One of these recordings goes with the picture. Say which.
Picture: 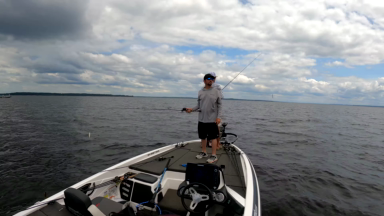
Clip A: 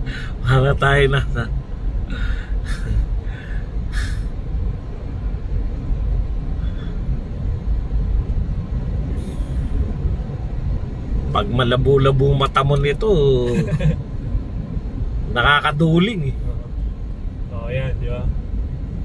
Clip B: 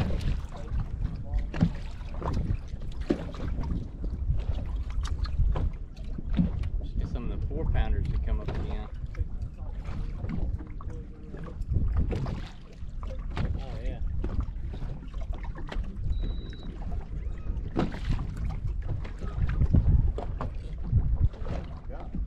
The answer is B